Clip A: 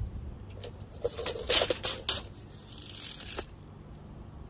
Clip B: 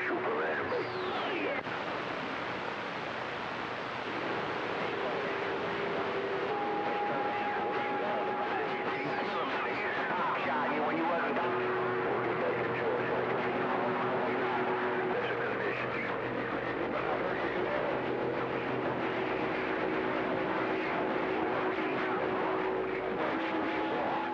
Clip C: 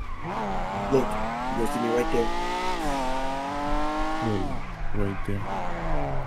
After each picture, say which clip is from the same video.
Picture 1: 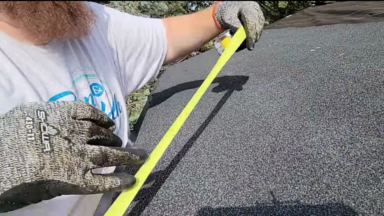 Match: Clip A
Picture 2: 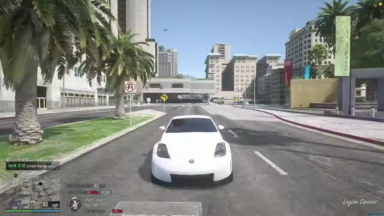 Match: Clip C